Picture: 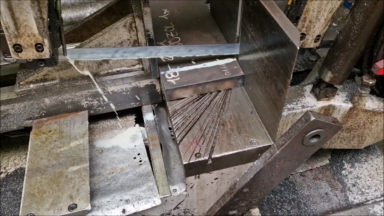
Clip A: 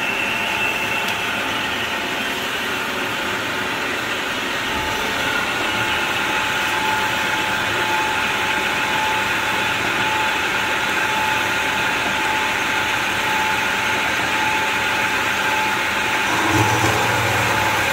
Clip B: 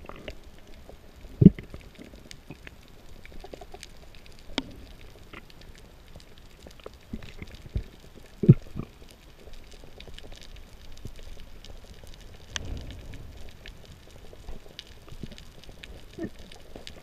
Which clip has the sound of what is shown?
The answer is A